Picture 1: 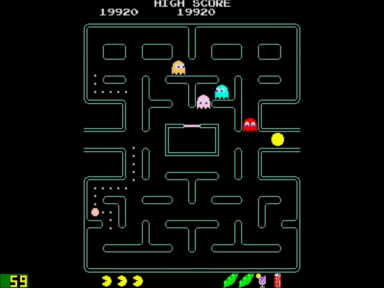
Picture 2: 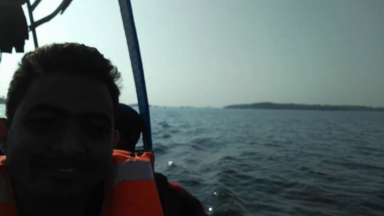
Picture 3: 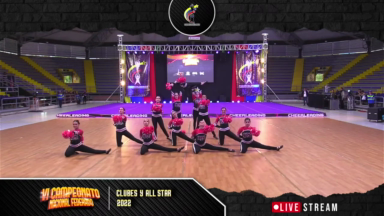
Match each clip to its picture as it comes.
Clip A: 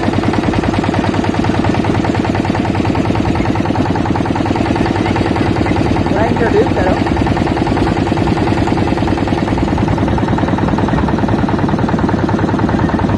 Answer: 2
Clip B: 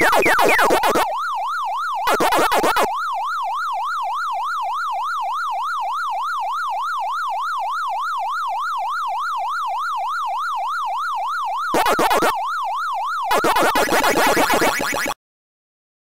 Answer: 1